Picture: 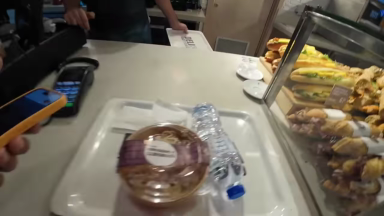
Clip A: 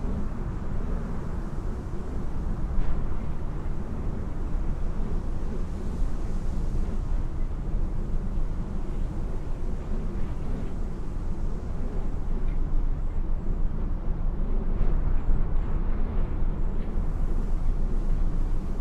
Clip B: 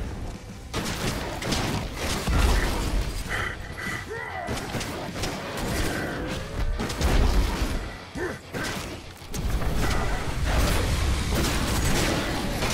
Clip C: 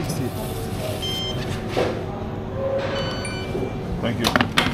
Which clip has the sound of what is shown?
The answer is C